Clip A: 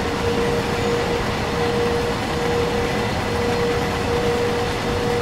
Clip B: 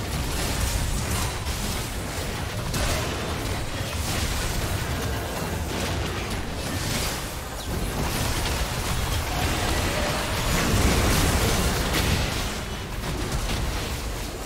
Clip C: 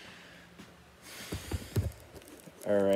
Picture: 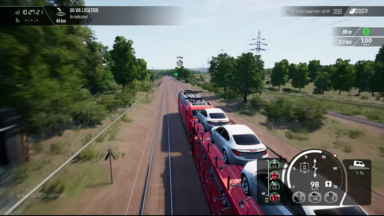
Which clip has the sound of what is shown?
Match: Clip A